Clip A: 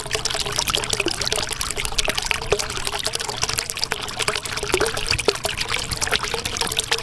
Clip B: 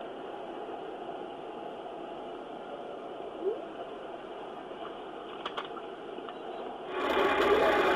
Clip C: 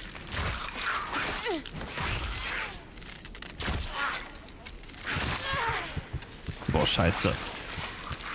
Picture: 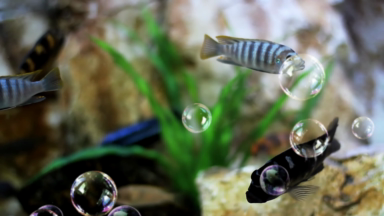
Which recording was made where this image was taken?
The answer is A